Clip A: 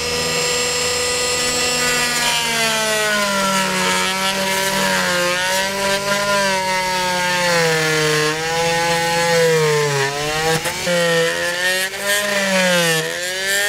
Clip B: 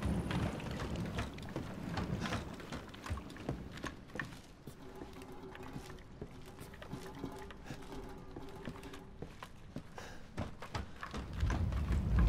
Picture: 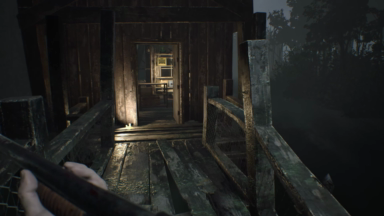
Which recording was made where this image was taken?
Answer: B